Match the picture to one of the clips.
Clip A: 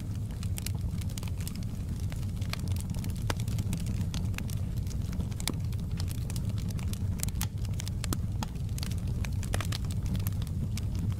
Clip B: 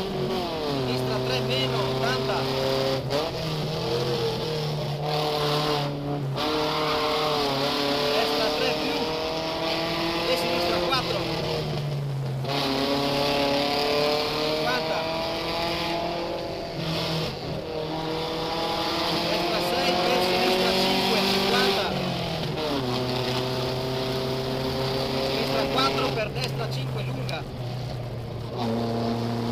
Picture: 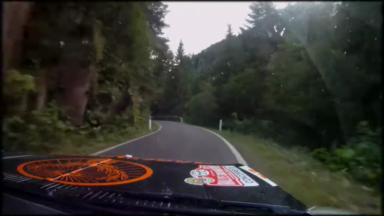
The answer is B